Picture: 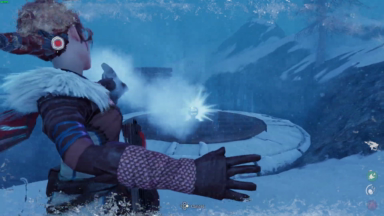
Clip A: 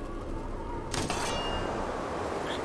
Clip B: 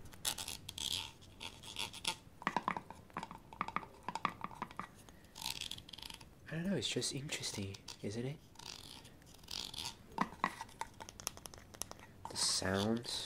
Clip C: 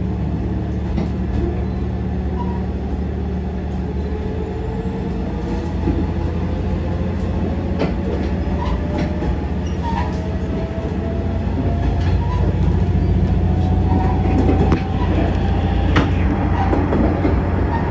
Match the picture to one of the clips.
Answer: A